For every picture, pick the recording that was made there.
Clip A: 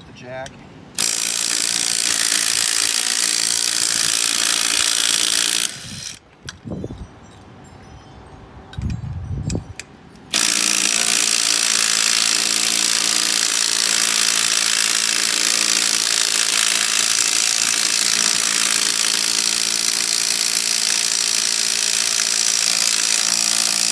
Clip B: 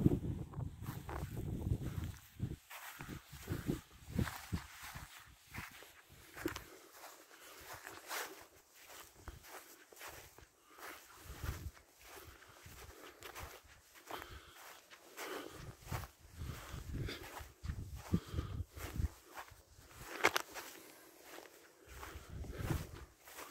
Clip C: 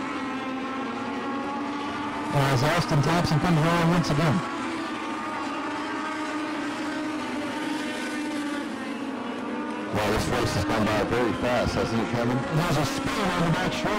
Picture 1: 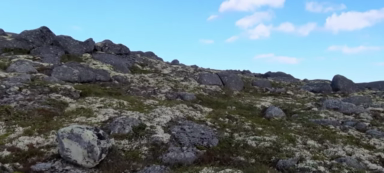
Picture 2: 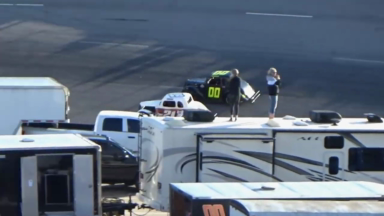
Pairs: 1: B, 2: C